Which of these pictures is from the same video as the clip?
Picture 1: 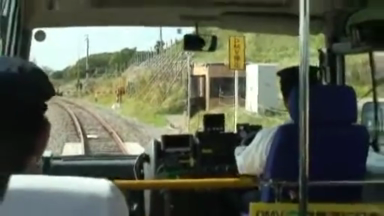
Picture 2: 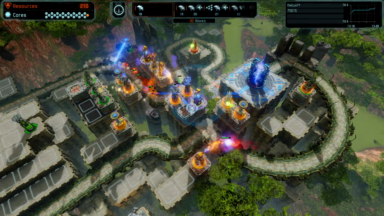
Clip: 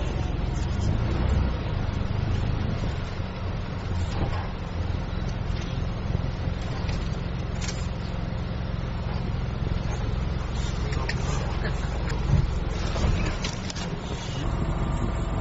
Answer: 1